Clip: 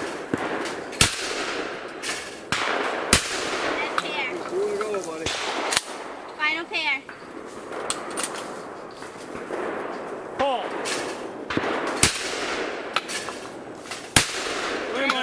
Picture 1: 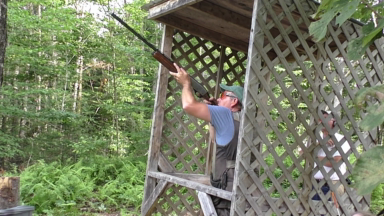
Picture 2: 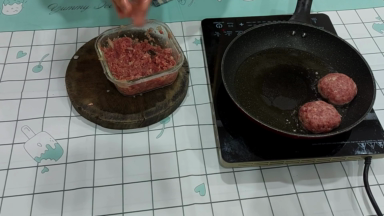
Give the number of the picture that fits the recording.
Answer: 1